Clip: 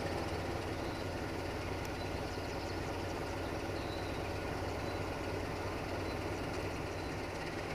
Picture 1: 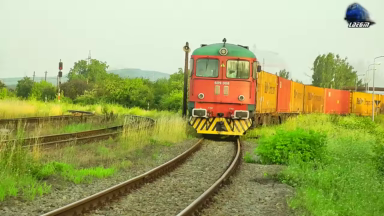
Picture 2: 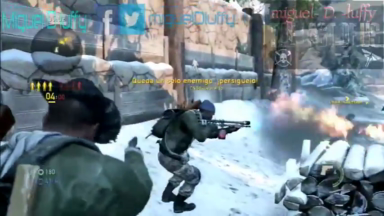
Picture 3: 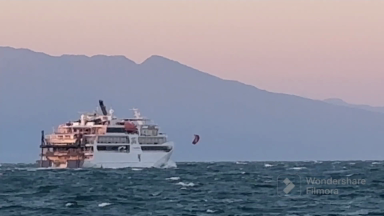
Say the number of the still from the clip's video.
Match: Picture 1